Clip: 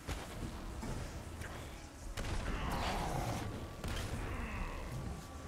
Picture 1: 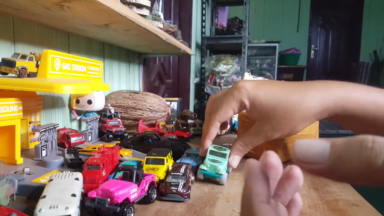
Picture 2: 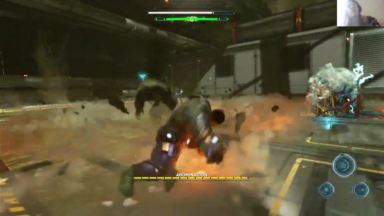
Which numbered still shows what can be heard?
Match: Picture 2